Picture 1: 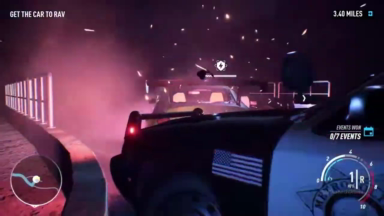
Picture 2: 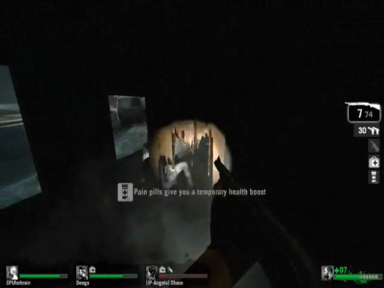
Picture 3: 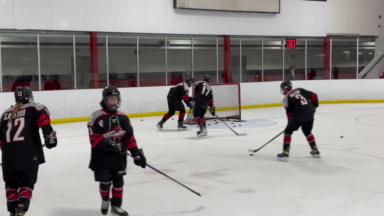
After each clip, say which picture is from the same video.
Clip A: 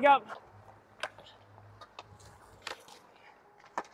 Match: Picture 3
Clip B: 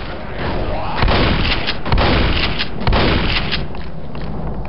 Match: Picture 2